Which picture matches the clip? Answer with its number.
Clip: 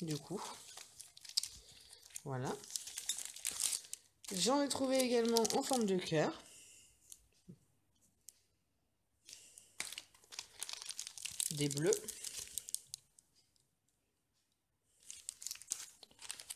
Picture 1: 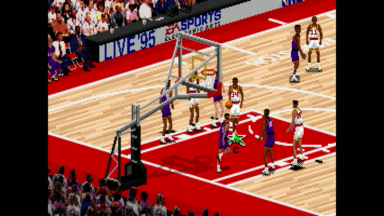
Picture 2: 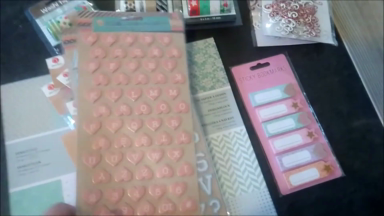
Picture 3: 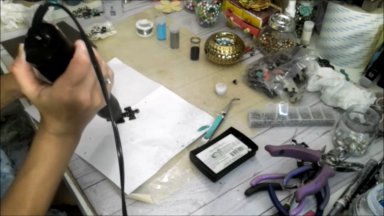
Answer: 2